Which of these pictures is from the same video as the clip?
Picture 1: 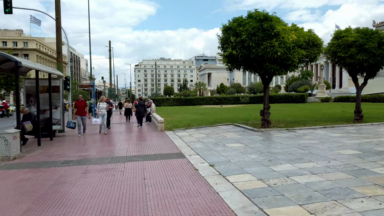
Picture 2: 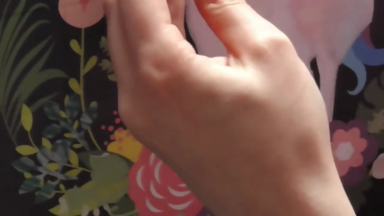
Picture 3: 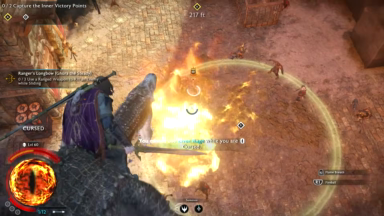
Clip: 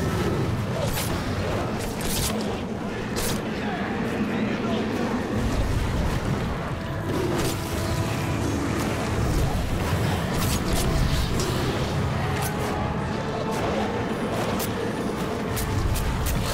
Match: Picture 3